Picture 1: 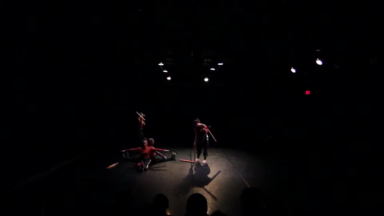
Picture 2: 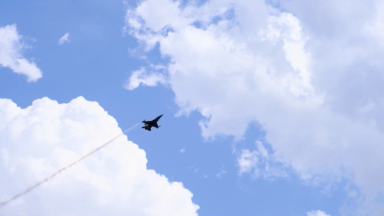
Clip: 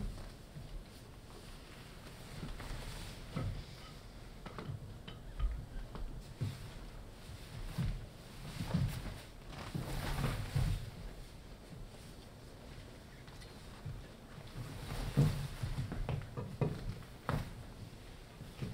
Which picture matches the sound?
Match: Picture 1